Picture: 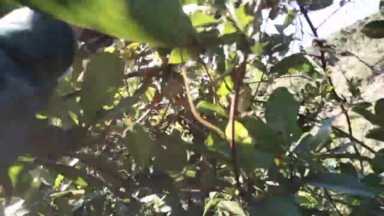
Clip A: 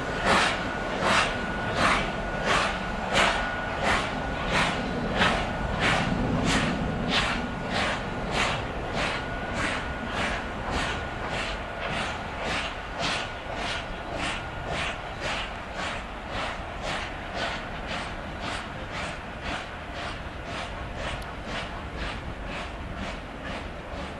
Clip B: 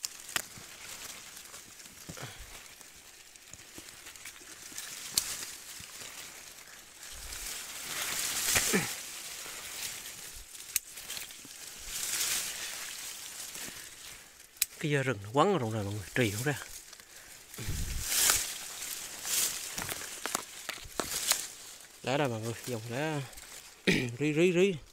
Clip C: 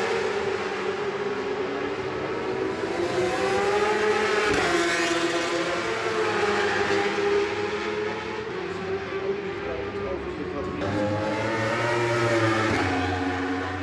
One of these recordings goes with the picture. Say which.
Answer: B